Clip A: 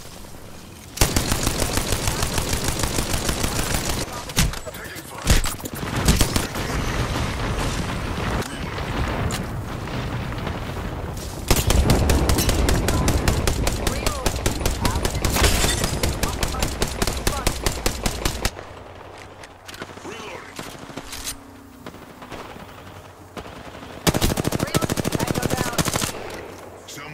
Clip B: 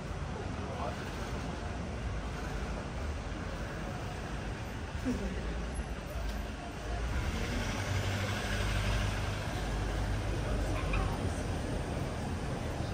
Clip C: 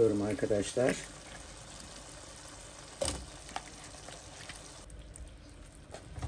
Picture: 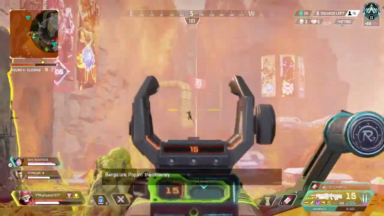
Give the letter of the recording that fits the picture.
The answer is A